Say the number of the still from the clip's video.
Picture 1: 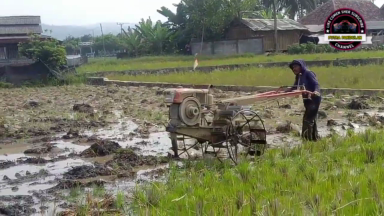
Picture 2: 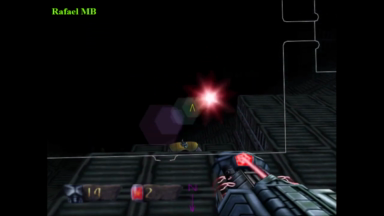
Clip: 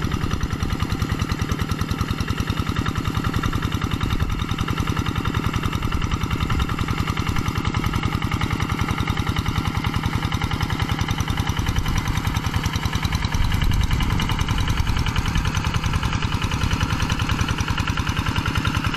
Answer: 1